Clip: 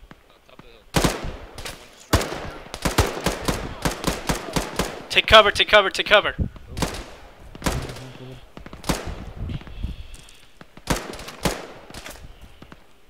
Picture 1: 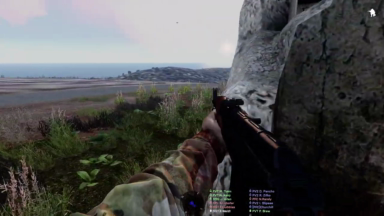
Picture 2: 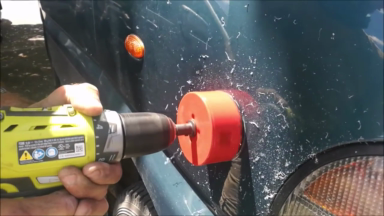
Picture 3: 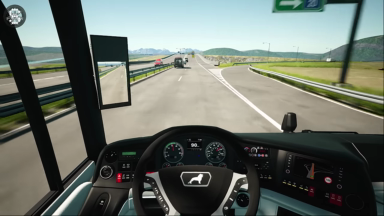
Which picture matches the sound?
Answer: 1